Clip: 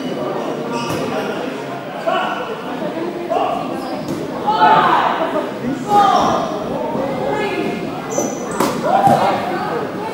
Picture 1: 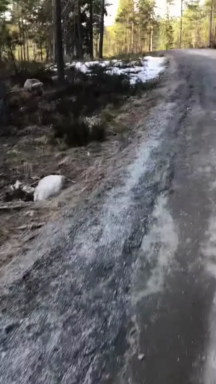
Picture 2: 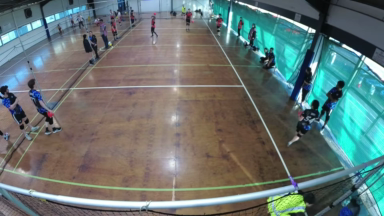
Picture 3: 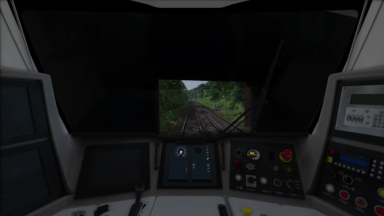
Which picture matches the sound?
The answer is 2